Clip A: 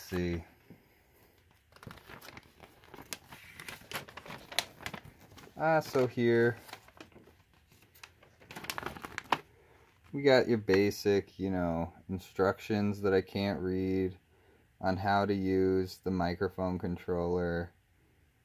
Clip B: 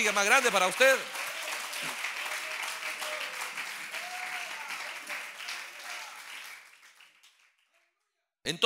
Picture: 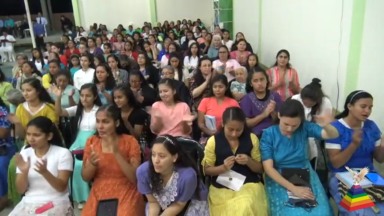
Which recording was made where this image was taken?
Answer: B